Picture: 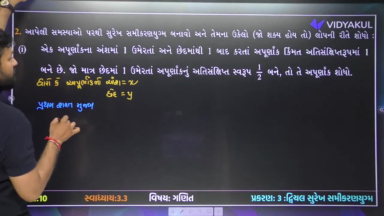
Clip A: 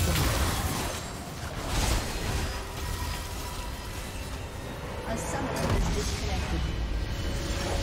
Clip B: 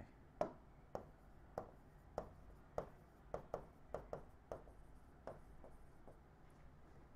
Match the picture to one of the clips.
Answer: B